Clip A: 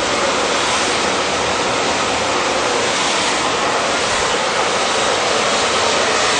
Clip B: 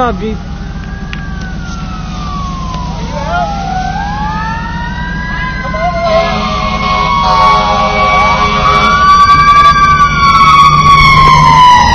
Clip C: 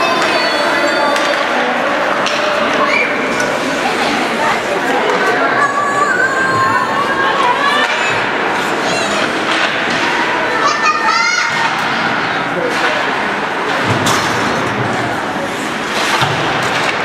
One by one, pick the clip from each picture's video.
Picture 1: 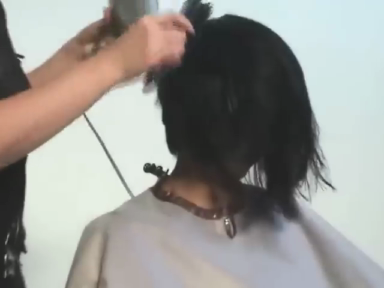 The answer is A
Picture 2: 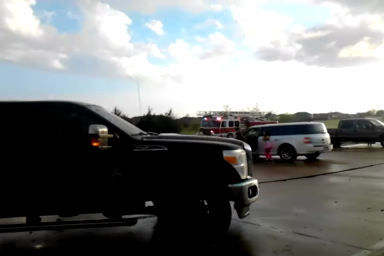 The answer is B